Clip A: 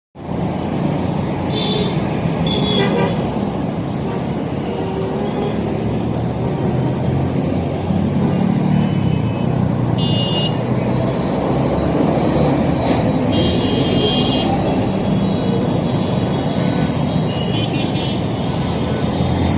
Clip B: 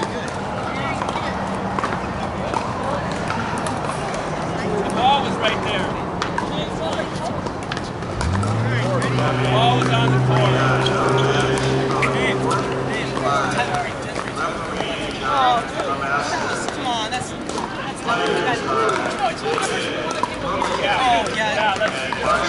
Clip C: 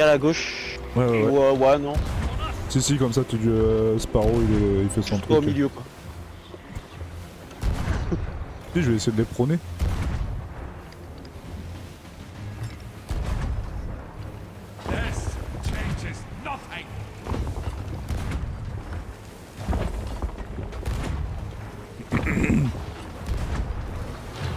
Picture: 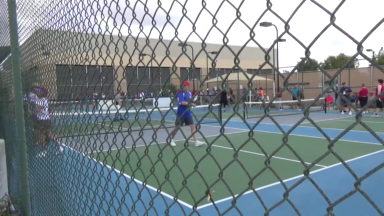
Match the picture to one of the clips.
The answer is B